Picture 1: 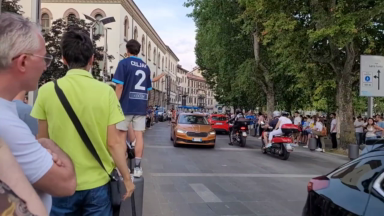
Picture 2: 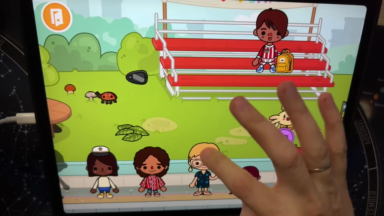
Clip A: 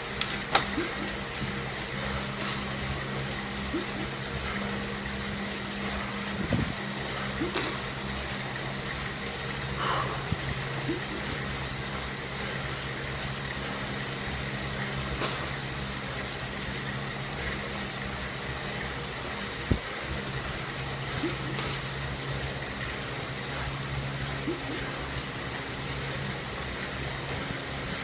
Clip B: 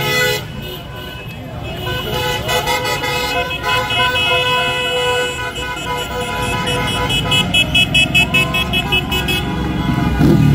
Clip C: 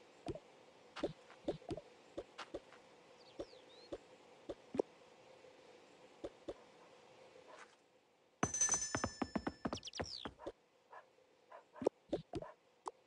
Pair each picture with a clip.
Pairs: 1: B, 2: C